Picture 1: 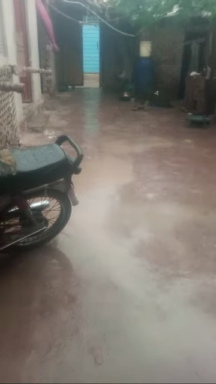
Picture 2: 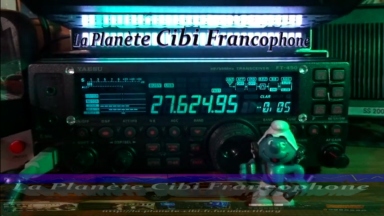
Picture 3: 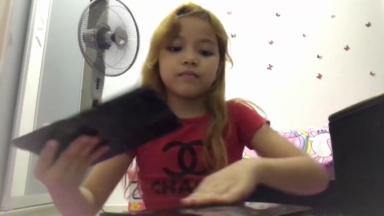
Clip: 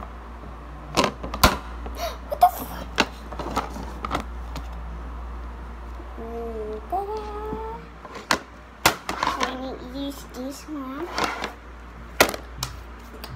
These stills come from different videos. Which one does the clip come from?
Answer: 3